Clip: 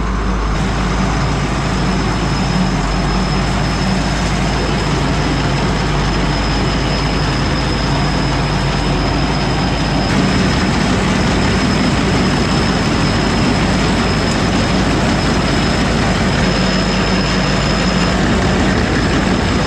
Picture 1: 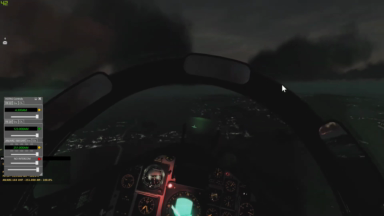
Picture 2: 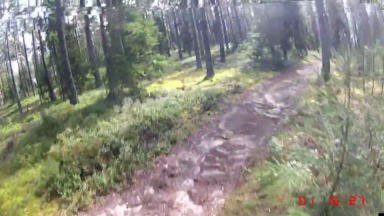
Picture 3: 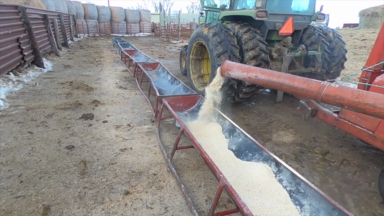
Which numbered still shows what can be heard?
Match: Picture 3